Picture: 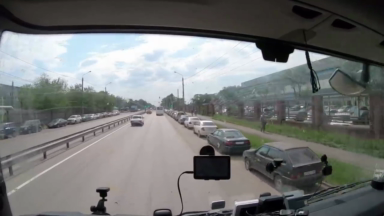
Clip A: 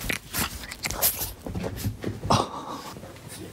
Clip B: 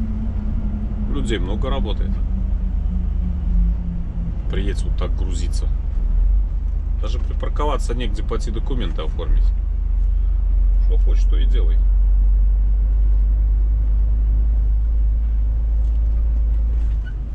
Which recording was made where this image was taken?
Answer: B